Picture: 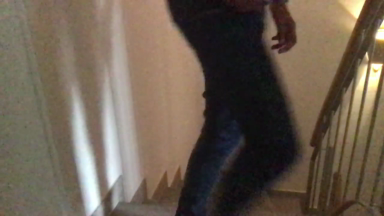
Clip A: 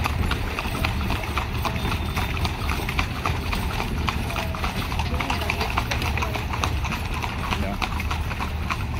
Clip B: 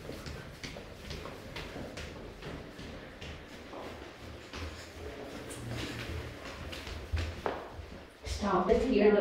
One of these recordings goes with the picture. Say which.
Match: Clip B